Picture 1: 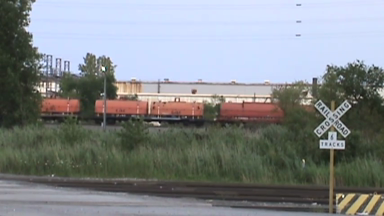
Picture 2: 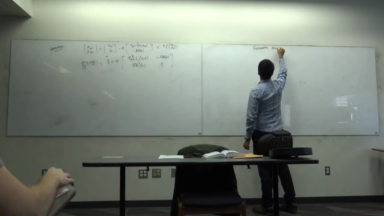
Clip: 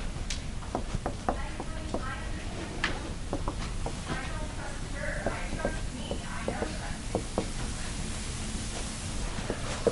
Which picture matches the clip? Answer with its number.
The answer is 2